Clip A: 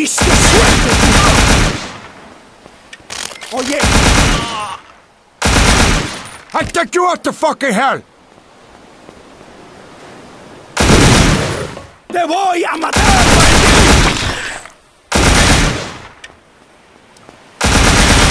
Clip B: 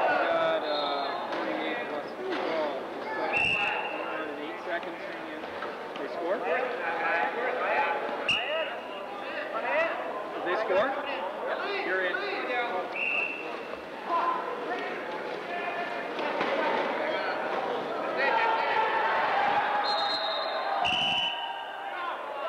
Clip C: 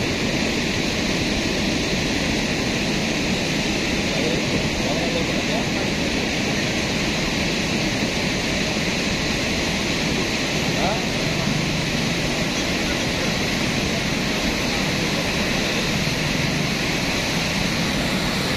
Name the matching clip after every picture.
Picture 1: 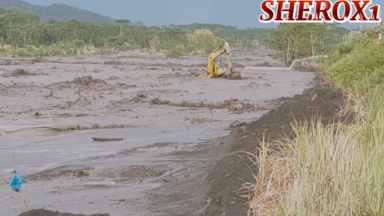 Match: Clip C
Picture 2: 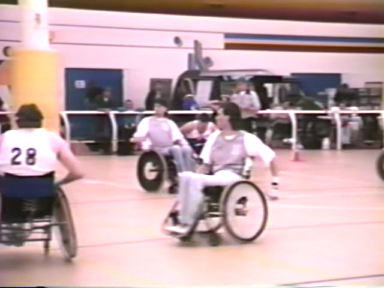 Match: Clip B